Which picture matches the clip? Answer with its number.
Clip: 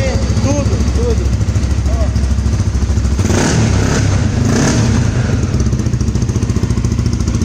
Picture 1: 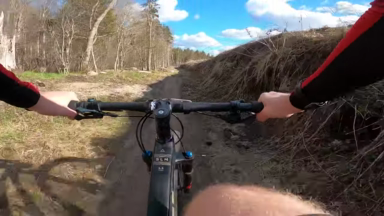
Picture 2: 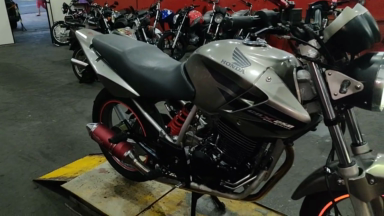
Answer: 2